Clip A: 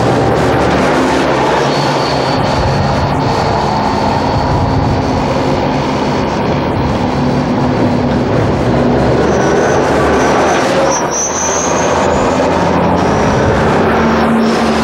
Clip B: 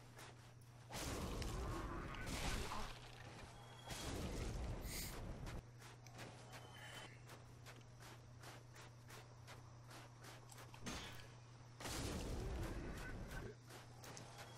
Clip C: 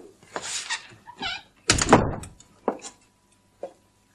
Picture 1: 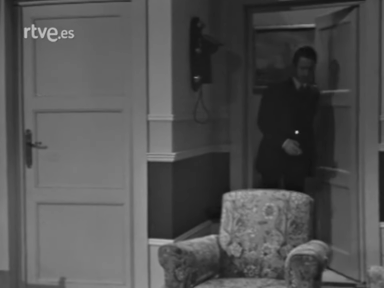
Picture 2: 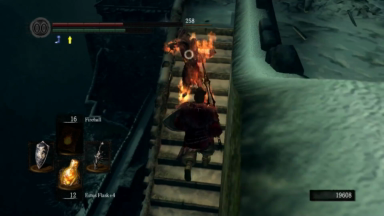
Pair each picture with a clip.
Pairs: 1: C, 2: B